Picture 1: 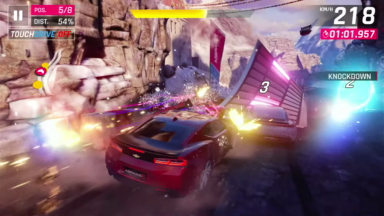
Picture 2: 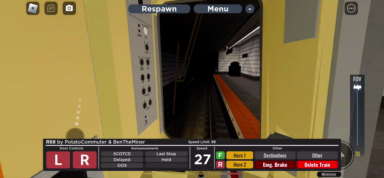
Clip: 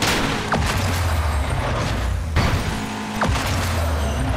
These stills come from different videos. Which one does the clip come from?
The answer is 1